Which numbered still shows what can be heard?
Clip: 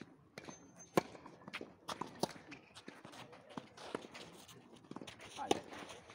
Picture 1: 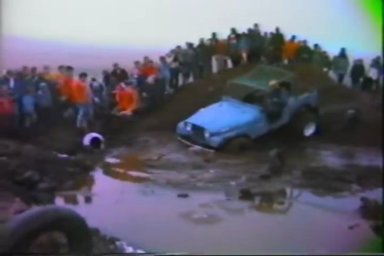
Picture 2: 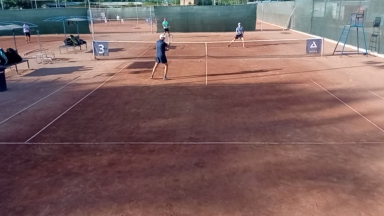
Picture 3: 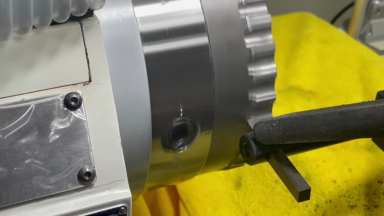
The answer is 2